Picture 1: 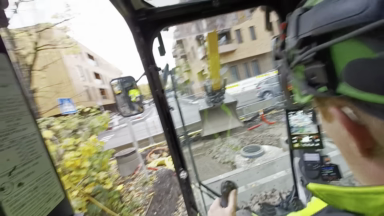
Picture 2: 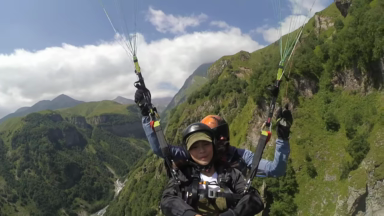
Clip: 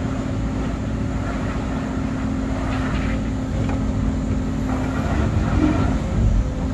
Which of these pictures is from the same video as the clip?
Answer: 1